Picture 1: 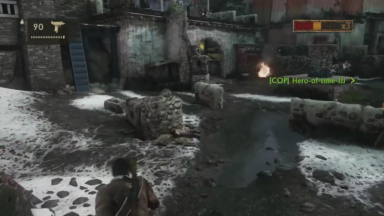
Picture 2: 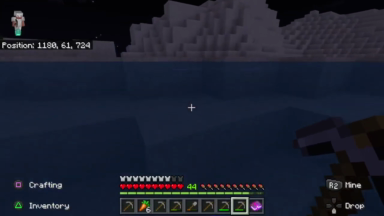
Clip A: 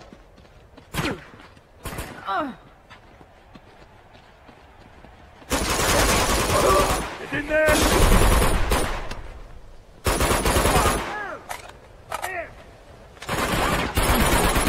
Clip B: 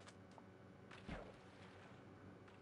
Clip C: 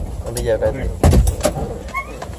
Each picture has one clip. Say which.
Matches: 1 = A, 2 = B